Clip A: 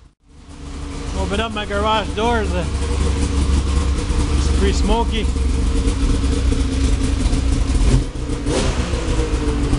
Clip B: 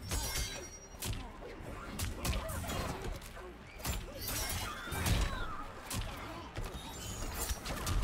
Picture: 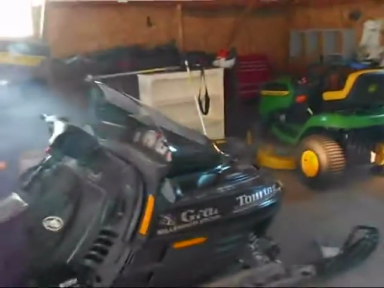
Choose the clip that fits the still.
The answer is A